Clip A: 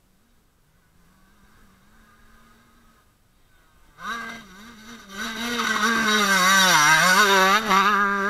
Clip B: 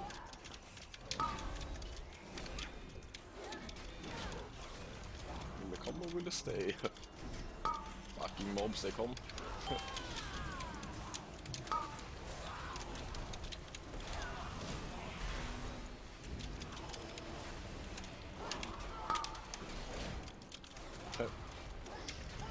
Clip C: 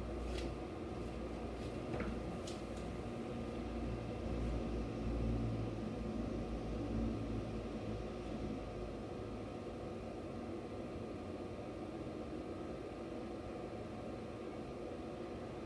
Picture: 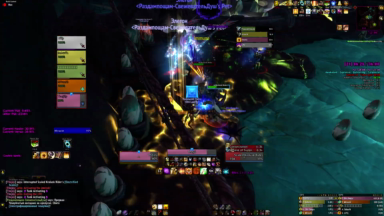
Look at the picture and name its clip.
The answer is B